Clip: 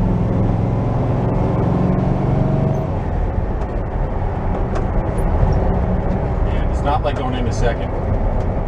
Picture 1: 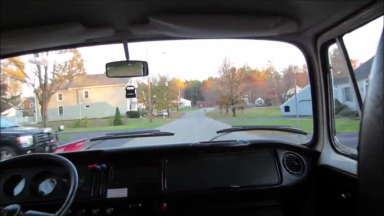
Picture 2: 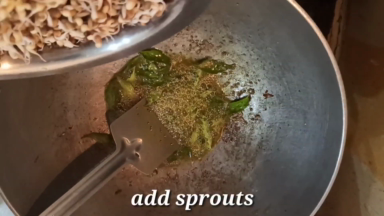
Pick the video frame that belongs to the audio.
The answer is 1